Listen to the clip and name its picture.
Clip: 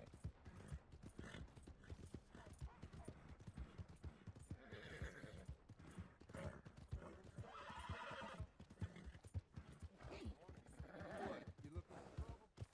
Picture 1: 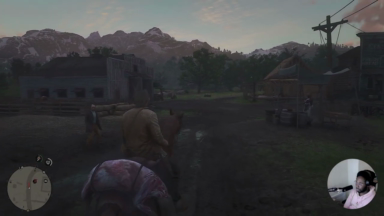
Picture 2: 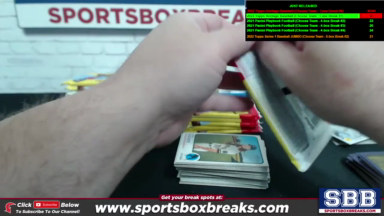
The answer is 1